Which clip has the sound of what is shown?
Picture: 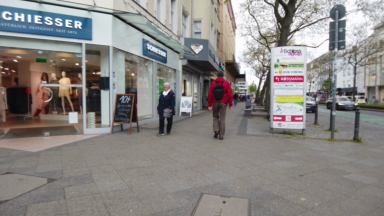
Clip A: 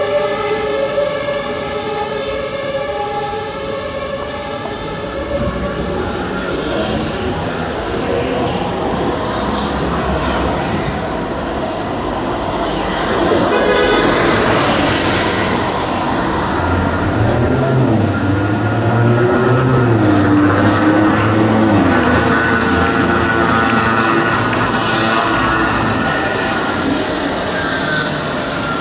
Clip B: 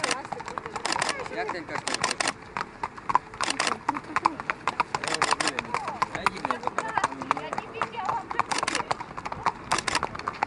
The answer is A